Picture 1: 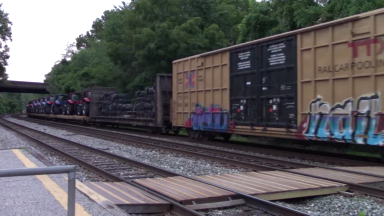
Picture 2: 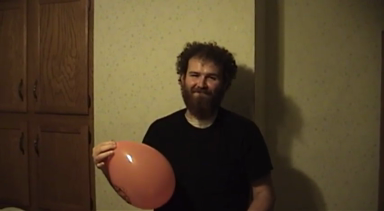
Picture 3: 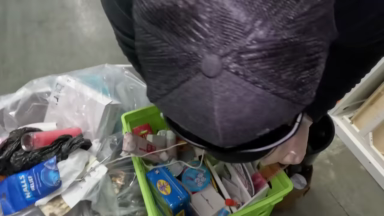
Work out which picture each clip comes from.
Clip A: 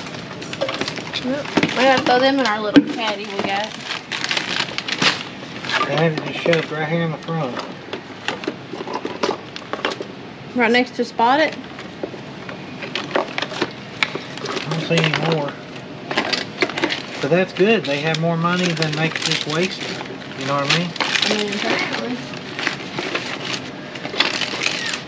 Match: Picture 3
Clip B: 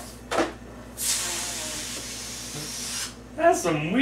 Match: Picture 2